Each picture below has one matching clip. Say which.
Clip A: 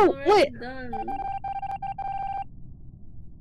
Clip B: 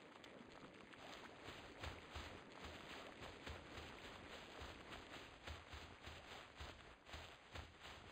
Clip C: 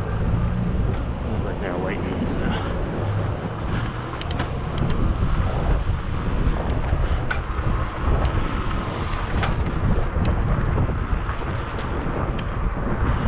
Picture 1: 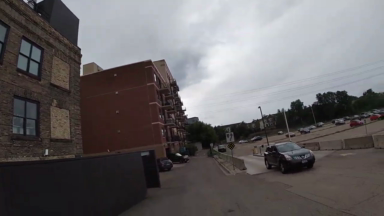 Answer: C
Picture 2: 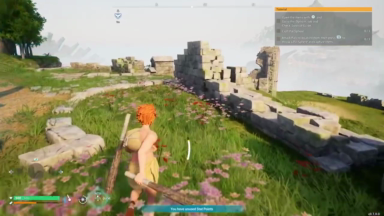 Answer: B